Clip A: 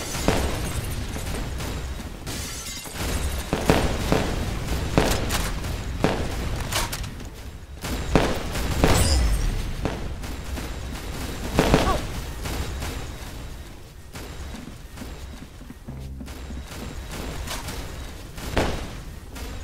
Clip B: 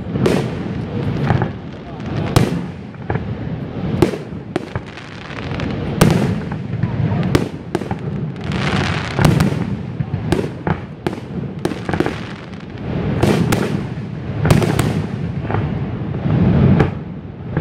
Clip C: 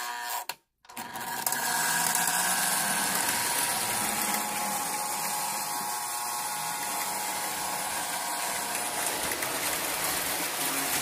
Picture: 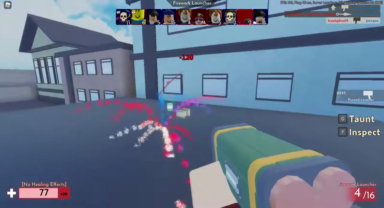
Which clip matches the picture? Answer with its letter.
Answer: A